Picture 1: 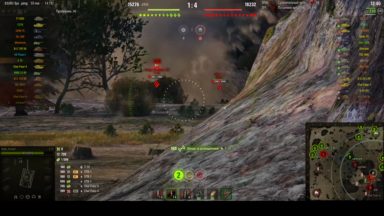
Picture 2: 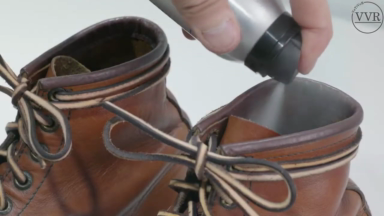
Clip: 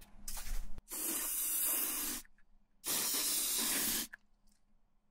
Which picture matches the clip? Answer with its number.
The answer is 2